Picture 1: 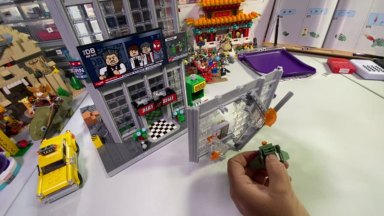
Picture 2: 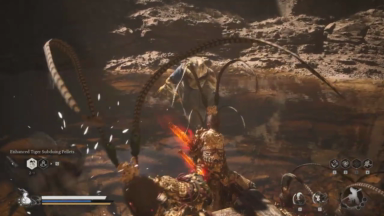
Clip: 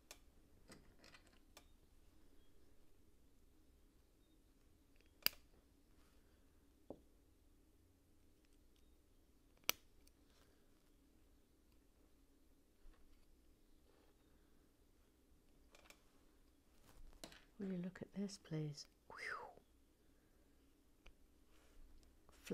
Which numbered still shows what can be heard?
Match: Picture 1